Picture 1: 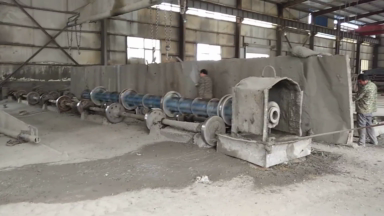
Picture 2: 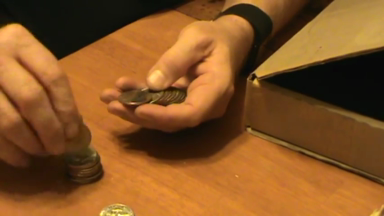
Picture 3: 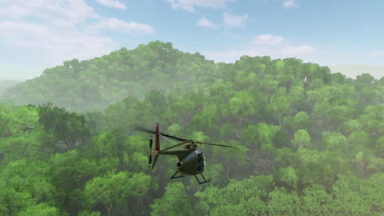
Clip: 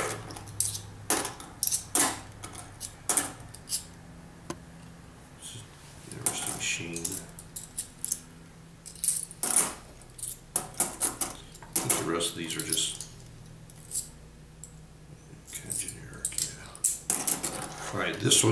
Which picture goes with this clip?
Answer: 2